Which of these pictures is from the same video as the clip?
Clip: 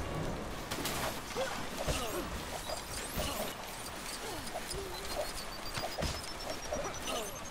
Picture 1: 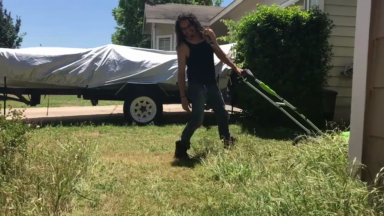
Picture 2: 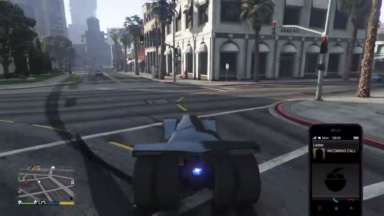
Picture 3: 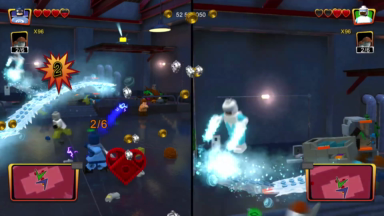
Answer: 3